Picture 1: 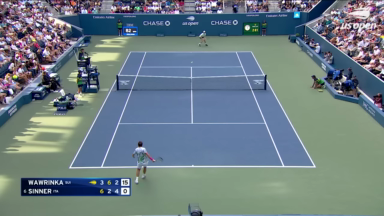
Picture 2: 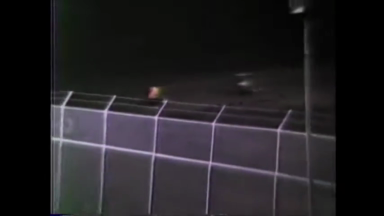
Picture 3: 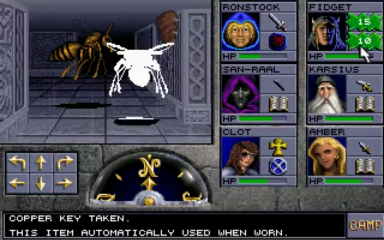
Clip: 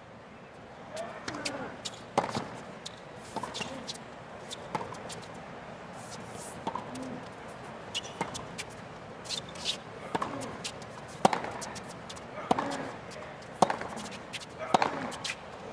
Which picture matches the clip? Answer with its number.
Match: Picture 1